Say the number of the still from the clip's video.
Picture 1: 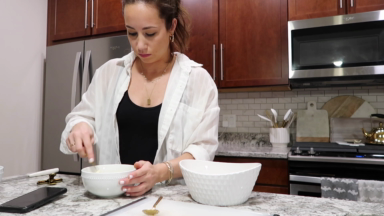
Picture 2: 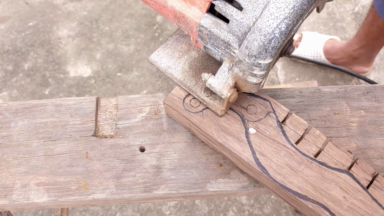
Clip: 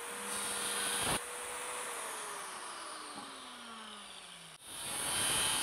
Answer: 2